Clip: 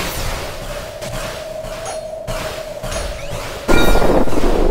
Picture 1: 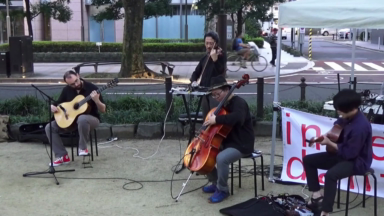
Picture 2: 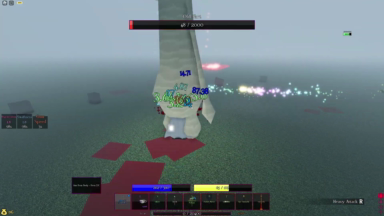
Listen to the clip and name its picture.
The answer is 2